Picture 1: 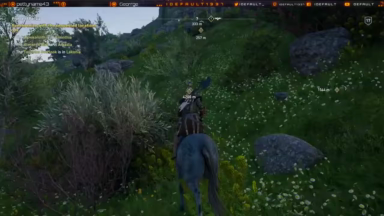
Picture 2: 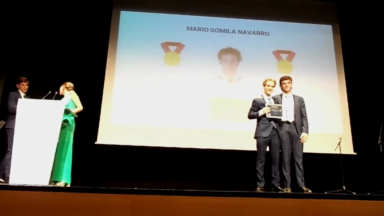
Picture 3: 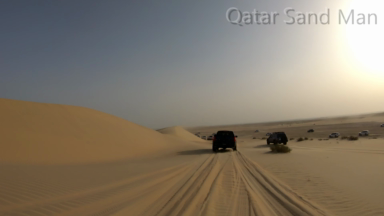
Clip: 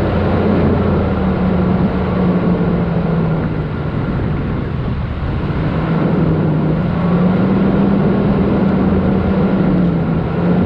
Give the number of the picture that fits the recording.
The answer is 3